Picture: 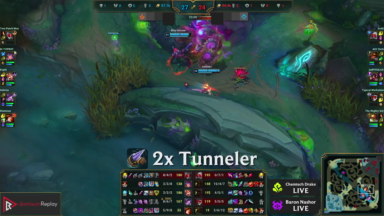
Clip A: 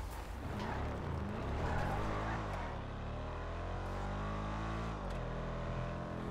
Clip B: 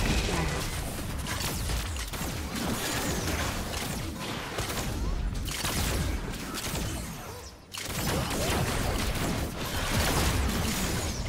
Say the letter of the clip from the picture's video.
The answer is B